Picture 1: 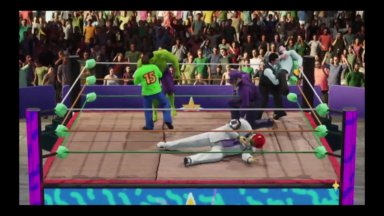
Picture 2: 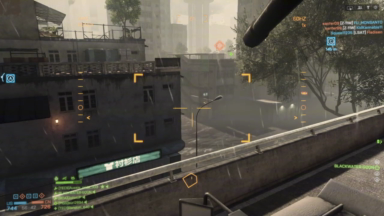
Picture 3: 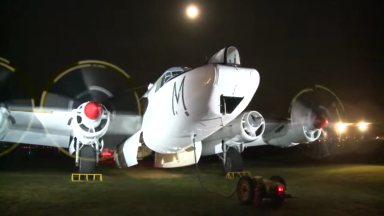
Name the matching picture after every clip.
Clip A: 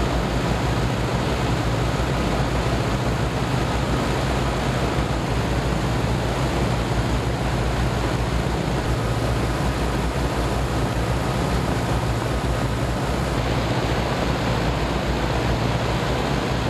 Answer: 3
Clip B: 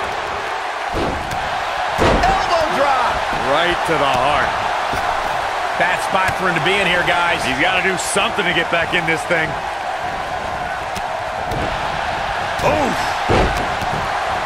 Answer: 1